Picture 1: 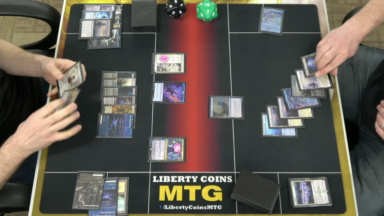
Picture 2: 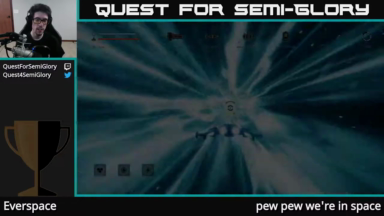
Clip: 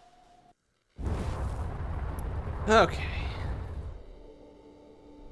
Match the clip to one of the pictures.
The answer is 2